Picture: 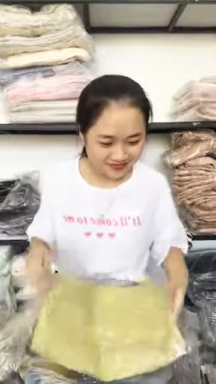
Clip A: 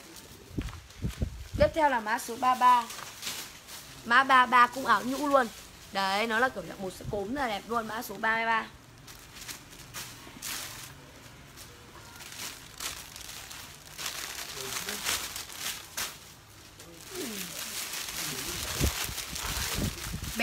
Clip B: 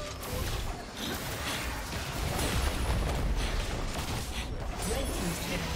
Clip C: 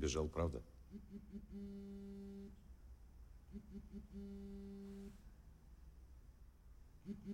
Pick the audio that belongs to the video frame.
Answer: A